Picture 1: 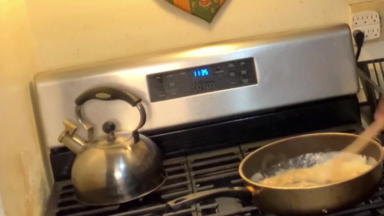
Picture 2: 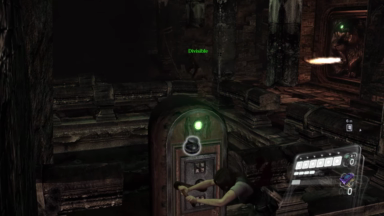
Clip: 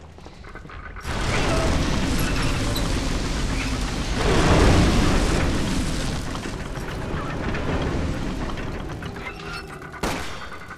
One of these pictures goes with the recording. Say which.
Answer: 2